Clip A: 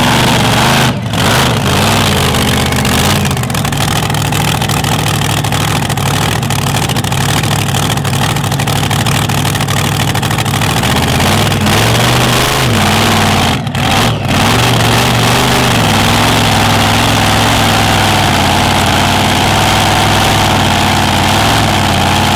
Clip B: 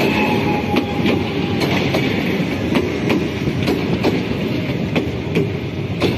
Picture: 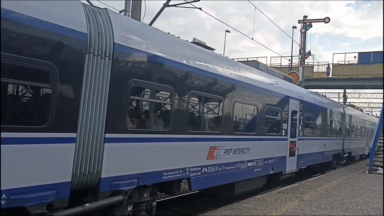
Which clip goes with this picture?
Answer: B